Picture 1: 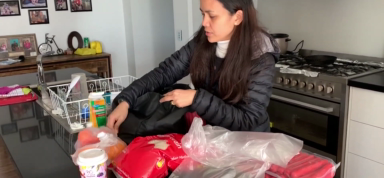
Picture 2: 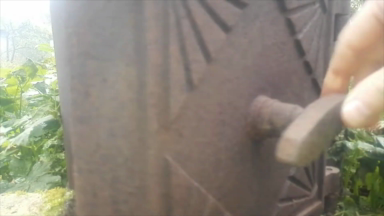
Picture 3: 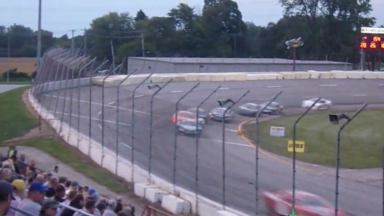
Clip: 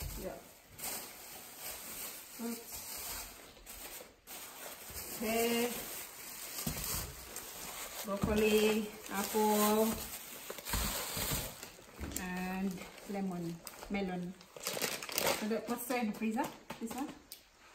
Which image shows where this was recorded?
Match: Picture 1